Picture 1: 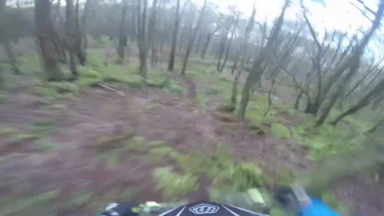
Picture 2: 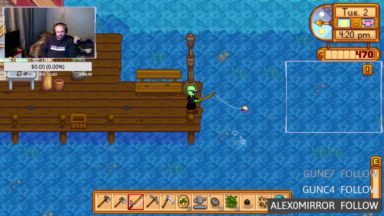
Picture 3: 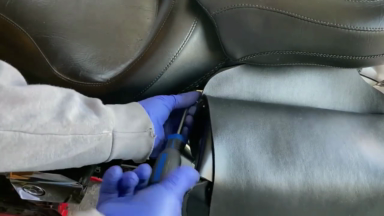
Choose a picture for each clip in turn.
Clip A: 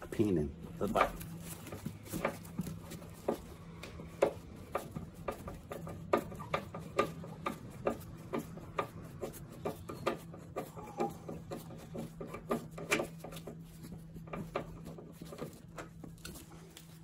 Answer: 3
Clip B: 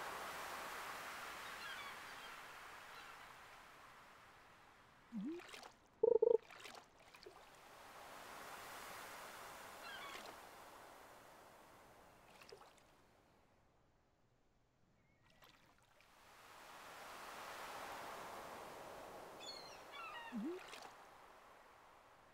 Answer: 2